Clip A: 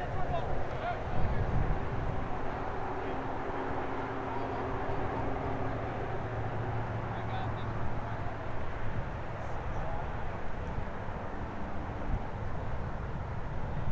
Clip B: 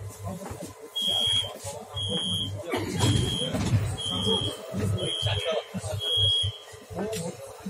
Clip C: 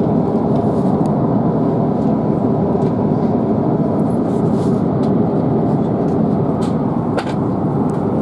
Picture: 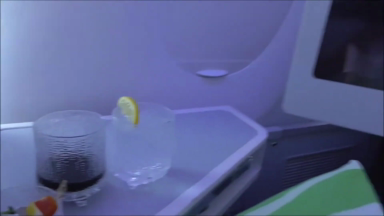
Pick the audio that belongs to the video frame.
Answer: C